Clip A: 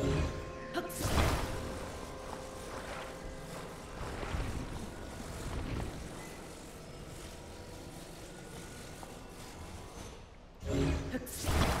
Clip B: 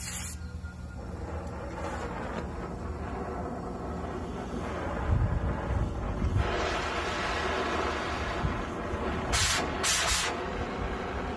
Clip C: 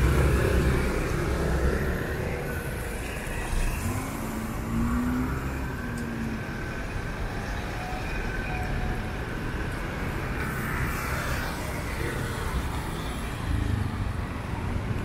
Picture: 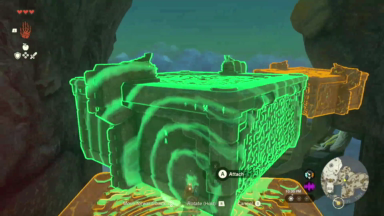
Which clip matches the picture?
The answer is A